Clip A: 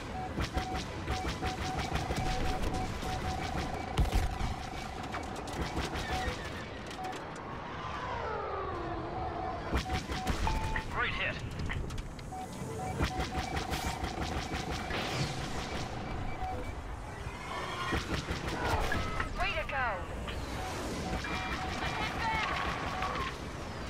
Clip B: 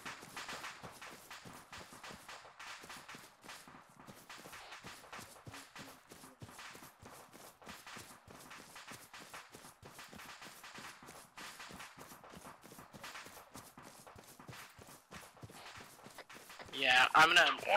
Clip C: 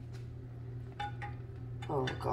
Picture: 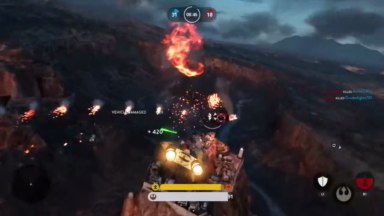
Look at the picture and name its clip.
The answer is A